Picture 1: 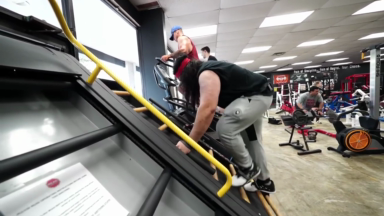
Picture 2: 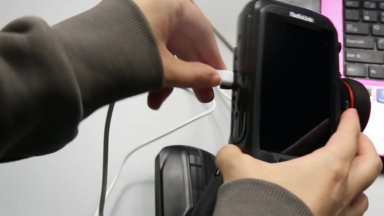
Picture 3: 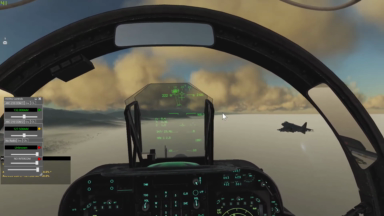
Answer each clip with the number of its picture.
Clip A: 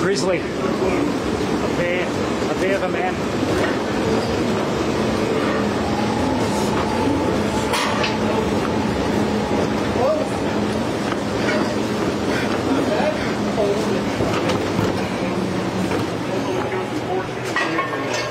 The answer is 1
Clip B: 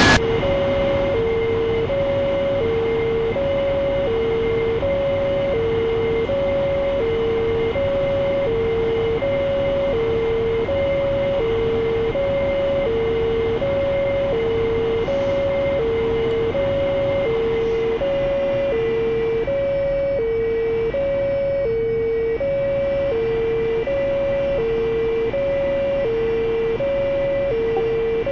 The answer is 3